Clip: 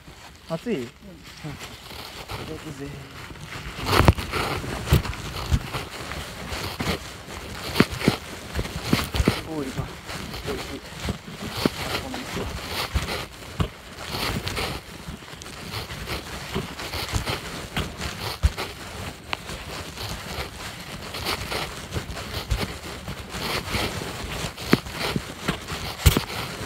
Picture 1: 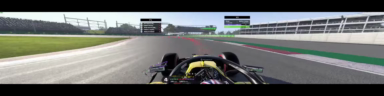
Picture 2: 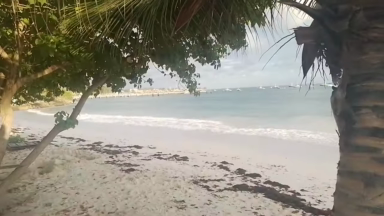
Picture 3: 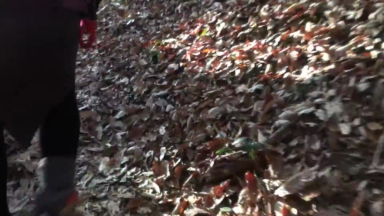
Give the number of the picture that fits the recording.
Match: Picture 3